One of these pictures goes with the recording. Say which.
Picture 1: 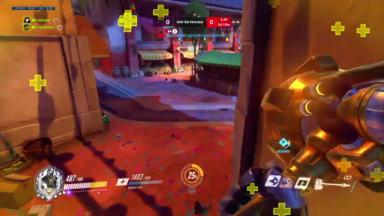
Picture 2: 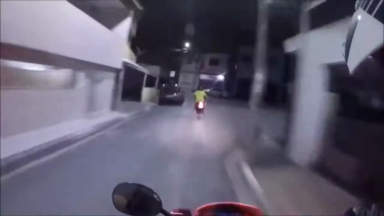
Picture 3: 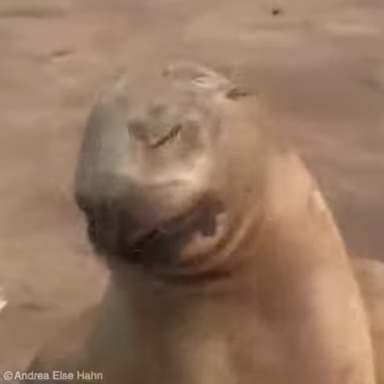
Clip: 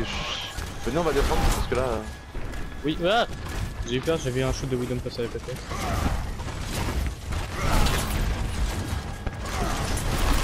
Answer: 1